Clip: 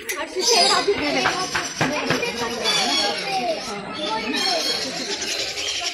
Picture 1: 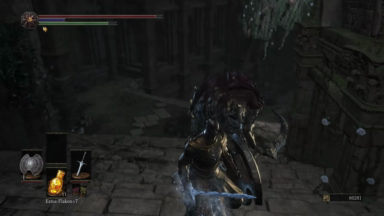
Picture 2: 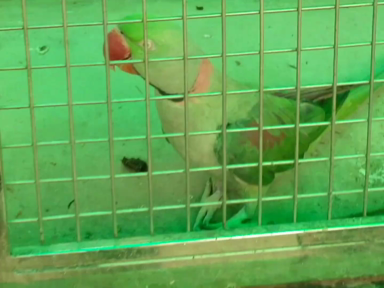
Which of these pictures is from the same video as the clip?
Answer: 2